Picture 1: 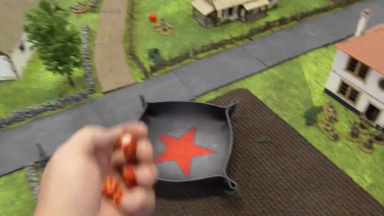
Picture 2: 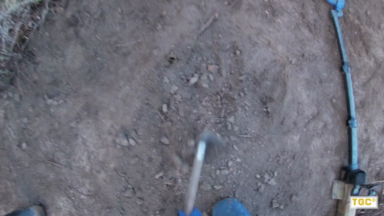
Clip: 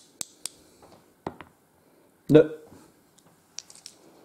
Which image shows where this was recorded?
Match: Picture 1